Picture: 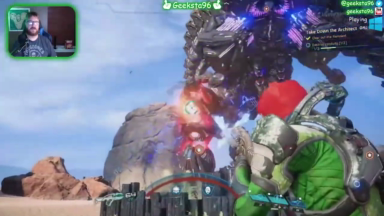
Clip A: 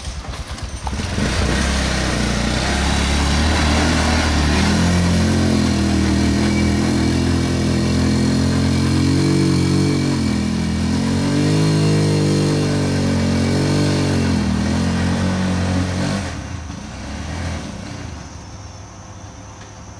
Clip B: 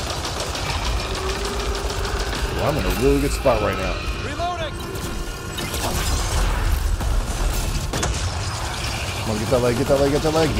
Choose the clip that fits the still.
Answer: B